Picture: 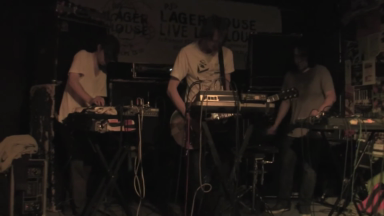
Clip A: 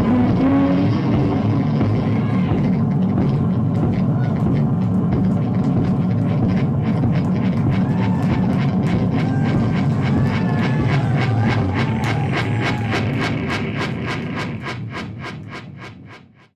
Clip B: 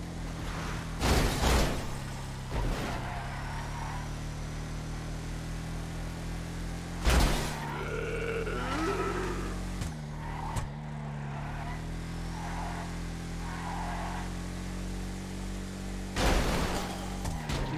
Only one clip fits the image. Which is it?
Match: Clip A